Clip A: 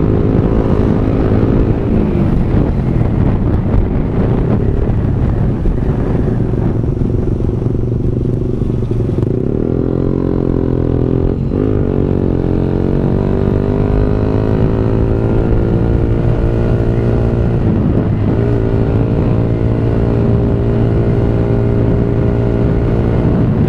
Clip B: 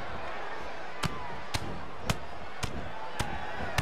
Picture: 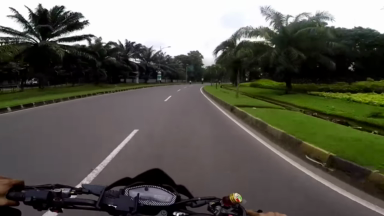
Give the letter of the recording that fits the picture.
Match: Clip A